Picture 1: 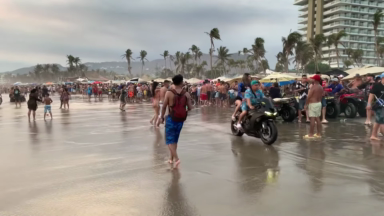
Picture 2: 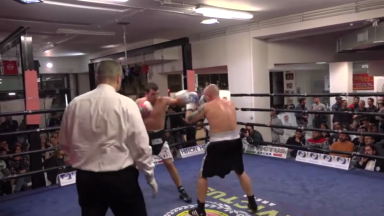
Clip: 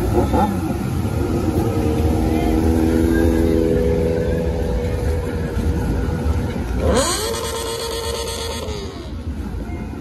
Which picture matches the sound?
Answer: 1